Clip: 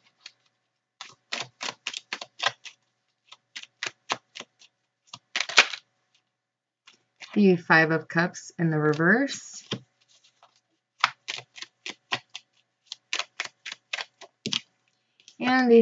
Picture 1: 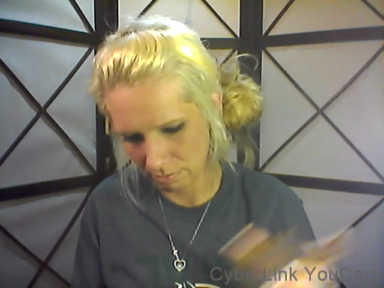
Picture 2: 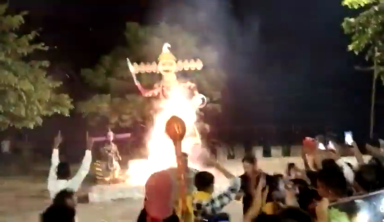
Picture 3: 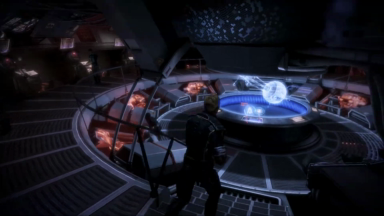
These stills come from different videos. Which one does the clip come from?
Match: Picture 1